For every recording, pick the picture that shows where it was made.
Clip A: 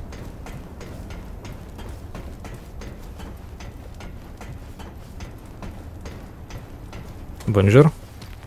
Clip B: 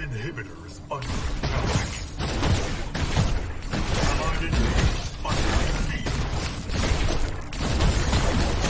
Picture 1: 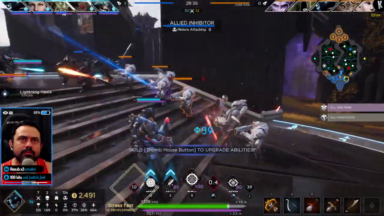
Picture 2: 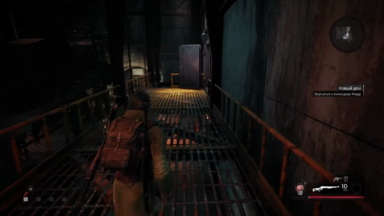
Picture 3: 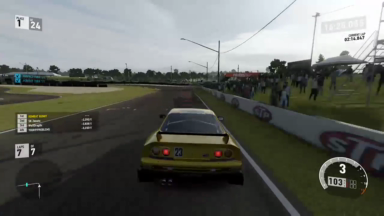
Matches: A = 2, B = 1